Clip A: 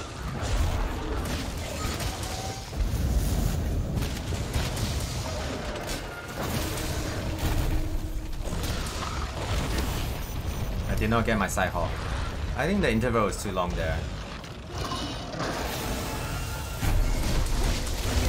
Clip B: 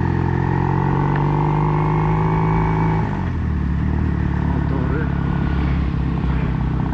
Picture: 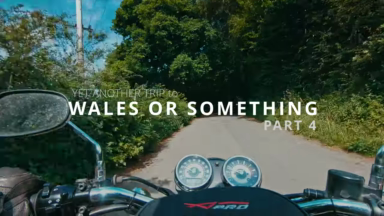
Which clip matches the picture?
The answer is B